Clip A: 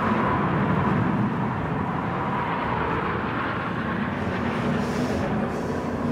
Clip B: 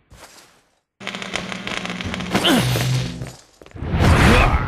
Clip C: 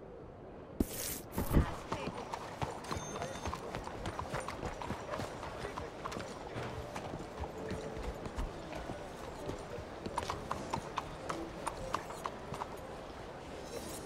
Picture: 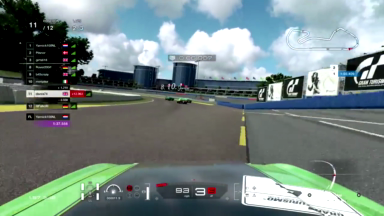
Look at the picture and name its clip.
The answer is A